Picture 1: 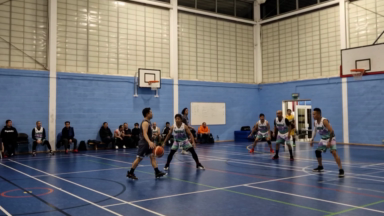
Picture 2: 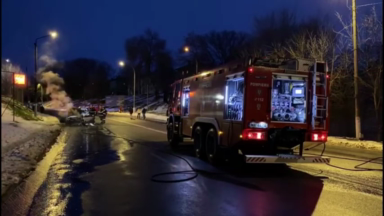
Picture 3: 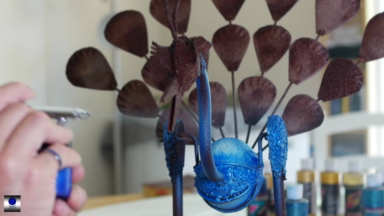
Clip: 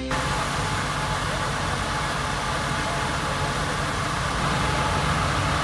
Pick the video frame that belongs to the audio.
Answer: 2